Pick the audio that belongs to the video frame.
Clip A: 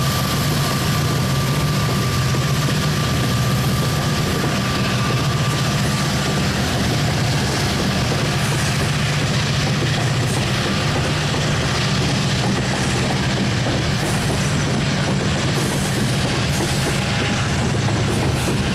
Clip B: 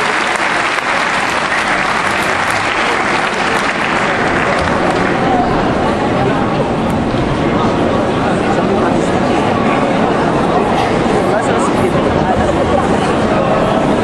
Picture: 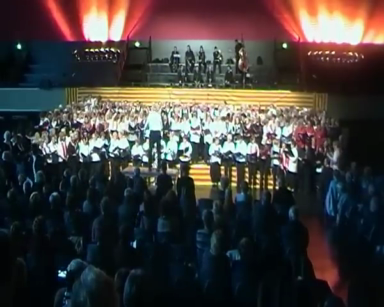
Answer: B